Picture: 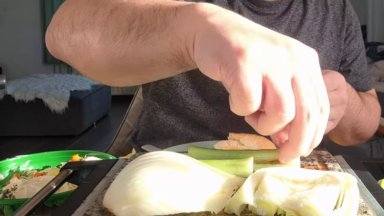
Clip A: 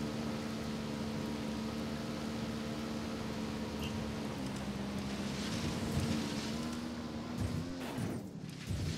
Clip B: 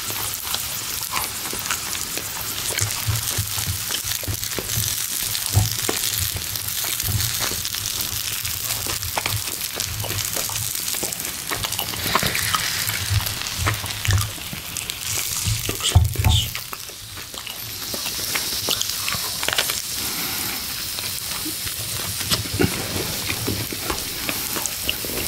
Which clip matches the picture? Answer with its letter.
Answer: B